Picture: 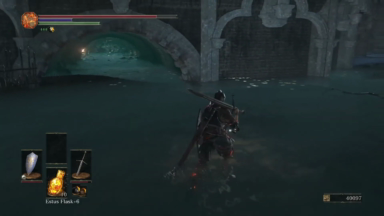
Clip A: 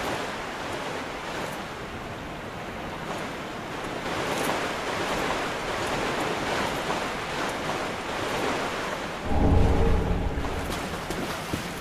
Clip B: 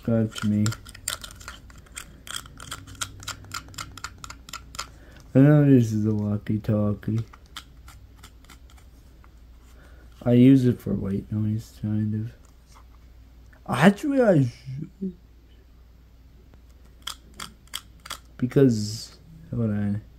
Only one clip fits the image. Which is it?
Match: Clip A